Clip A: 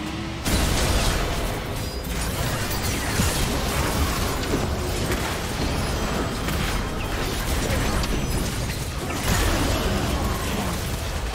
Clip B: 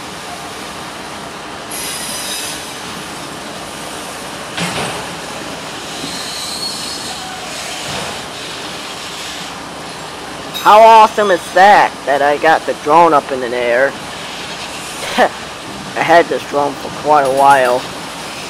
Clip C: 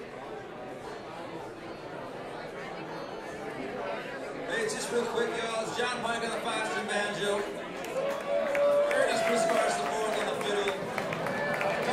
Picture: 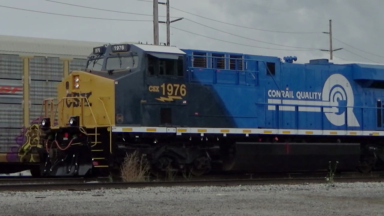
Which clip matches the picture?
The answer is B